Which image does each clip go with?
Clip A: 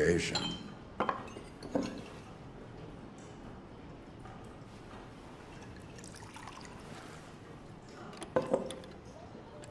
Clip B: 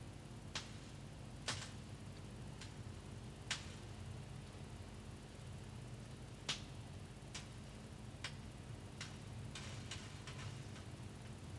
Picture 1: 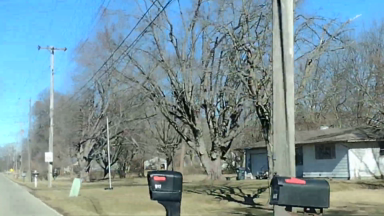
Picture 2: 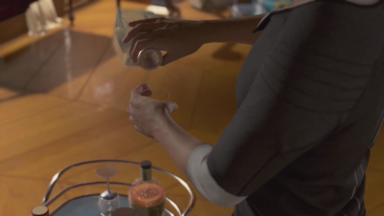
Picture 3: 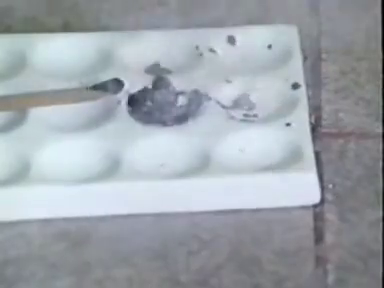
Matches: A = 2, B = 3